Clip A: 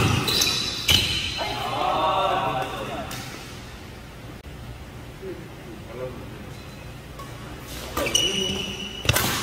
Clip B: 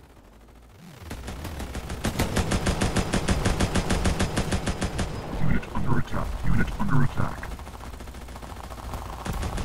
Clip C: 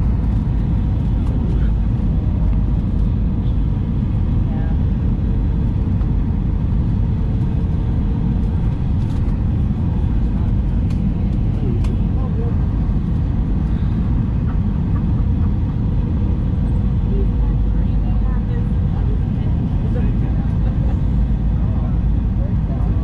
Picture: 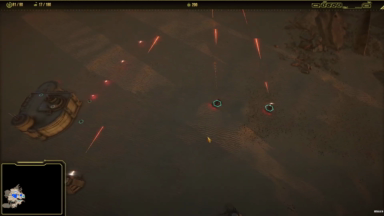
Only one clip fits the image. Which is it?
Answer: B